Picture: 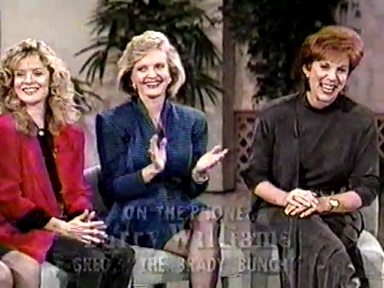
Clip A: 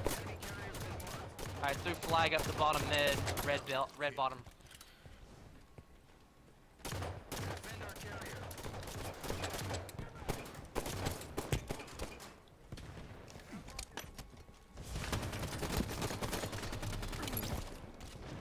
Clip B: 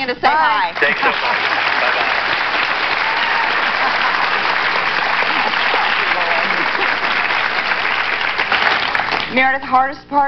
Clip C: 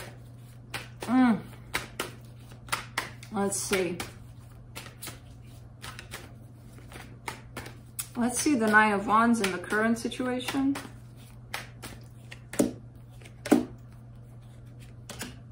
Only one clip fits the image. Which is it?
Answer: B